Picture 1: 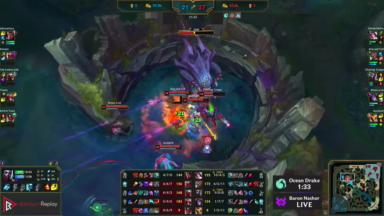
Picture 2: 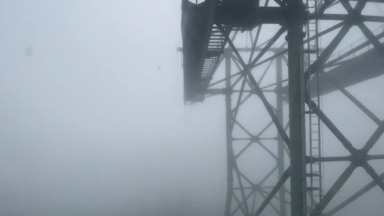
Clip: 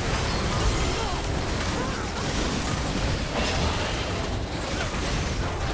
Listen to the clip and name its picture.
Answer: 1